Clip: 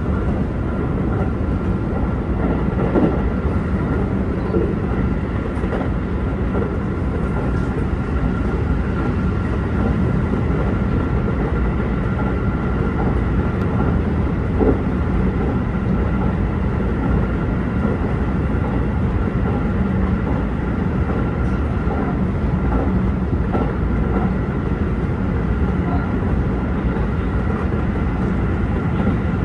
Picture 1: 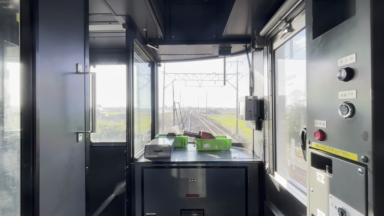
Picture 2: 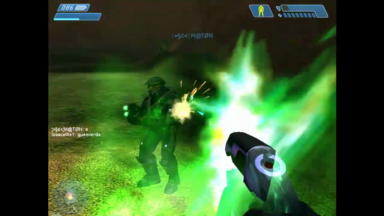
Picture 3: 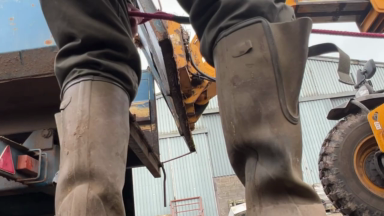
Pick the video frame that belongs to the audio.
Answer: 1